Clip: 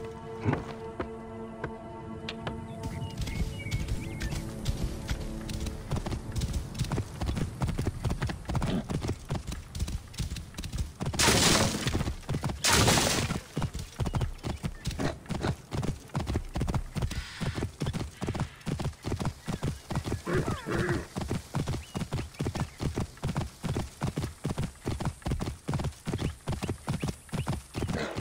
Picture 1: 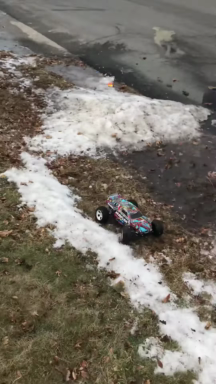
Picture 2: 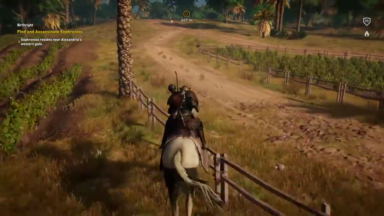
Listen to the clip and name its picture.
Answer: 2